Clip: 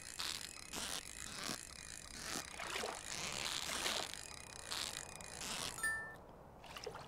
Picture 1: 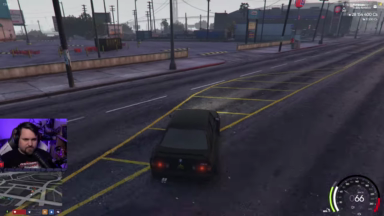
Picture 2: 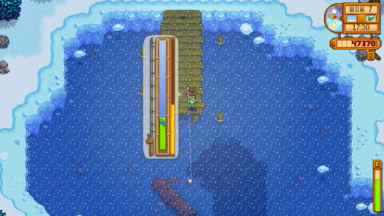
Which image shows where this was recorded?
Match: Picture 2